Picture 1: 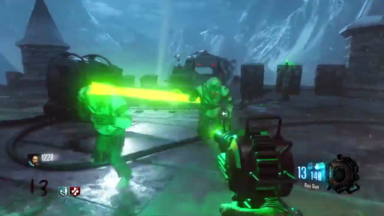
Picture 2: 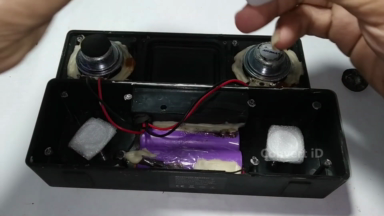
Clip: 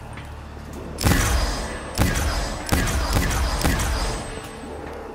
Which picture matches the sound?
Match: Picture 1